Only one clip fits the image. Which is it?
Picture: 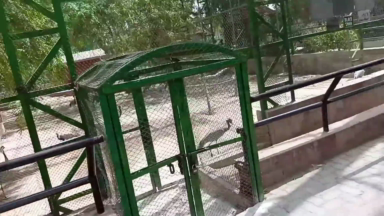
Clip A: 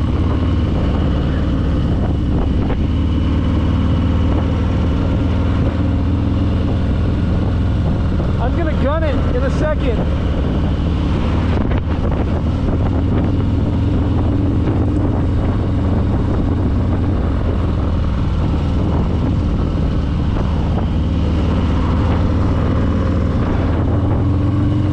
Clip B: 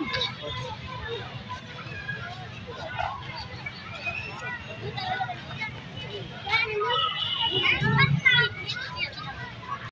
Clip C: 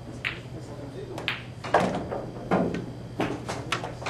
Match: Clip B